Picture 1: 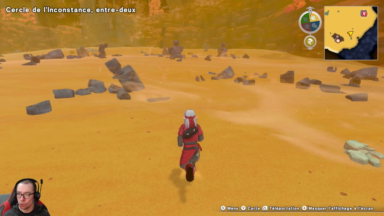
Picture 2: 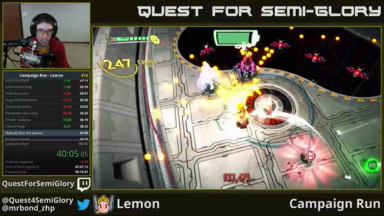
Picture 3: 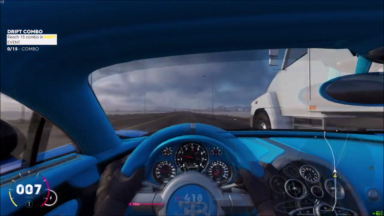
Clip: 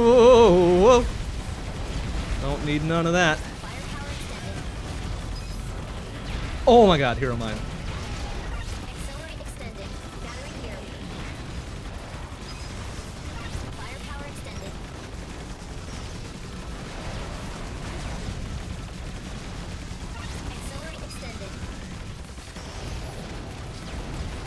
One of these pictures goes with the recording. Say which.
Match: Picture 2